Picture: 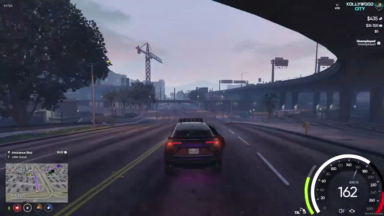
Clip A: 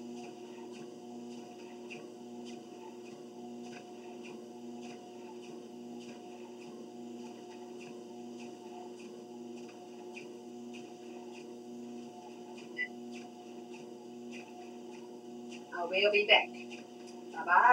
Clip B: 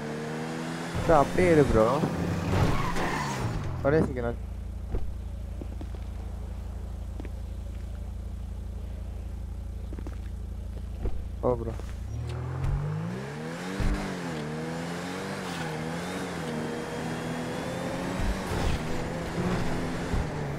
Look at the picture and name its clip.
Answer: B